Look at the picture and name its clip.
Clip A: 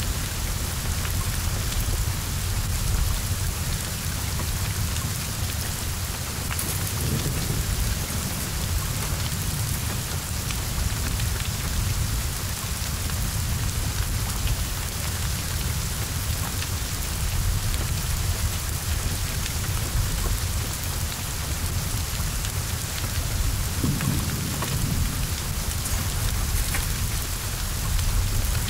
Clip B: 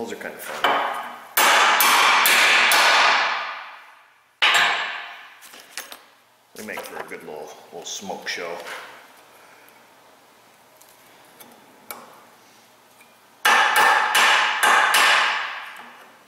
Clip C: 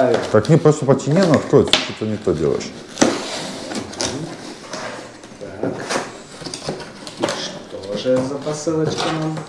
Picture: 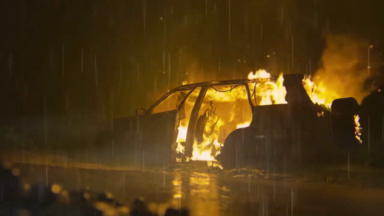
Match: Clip A